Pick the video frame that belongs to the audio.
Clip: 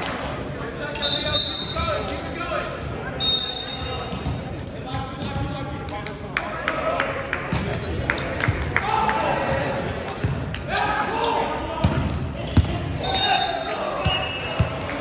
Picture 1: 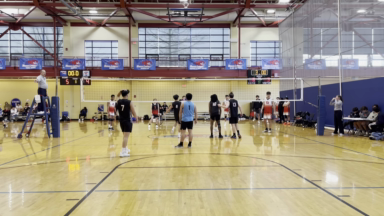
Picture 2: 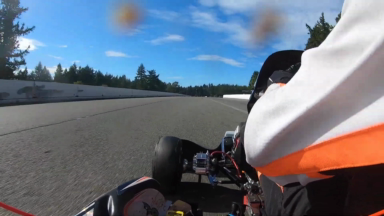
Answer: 1